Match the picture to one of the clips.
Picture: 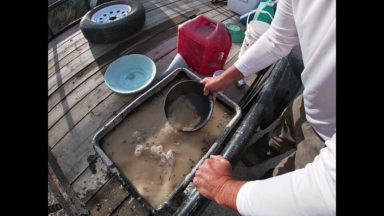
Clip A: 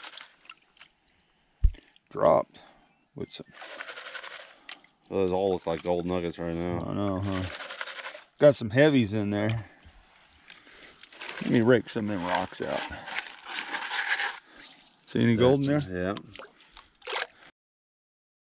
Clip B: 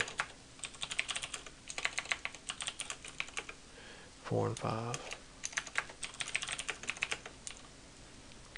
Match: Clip A